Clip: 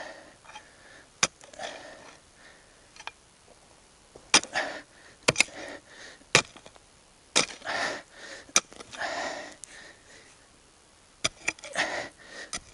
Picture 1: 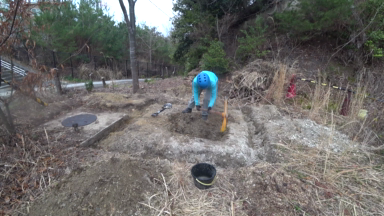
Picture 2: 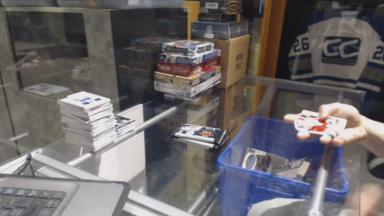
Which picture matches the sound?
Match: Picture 1